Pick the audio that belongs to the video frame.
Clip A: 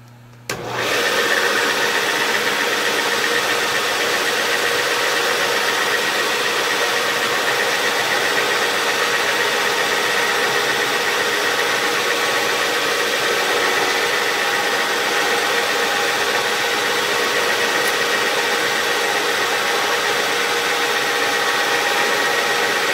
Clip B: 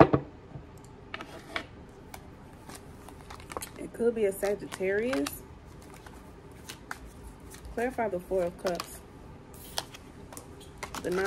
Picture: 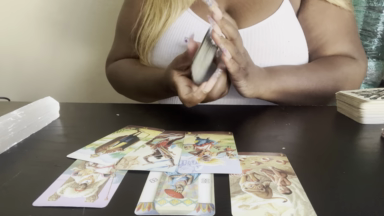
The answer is B